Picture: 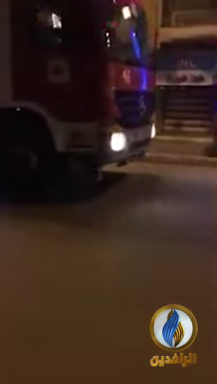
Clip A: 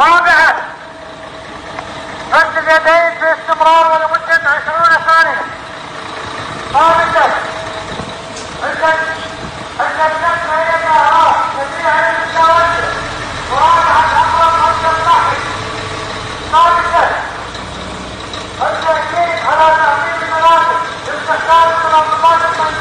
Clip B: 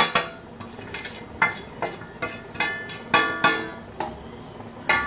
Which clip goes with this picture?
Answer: A